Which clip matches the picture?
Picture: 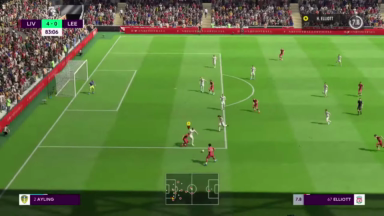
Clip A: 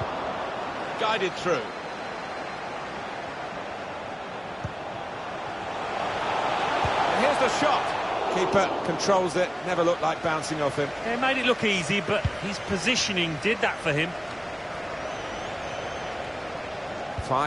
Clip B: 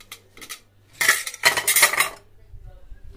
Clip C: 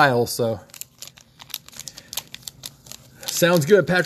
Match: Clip A